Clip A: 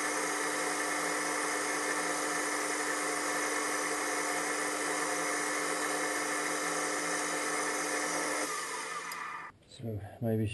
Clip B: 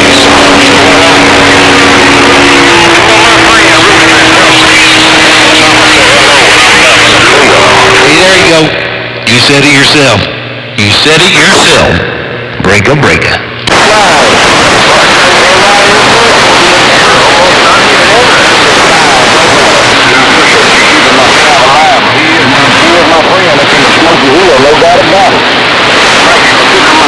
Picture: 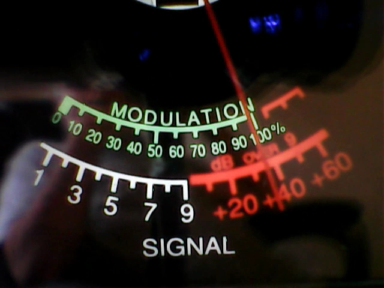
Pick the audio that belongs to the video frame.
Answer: B